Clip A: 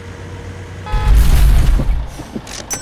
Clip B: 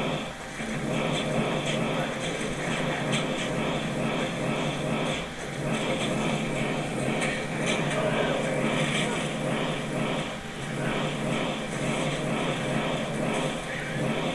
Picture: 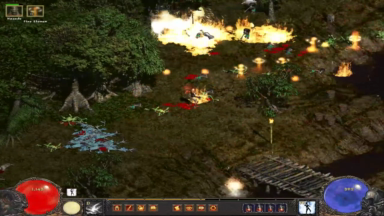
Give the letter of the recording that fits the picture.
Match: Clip B